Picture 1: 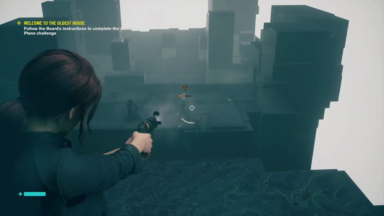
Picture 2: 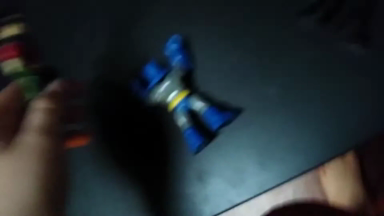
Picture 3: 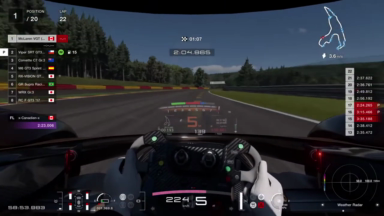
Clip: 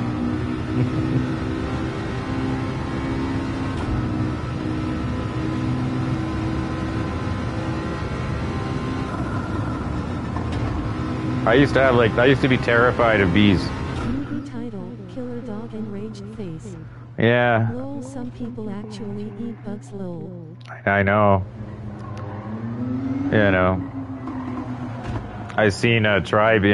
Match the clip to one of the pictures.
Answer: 3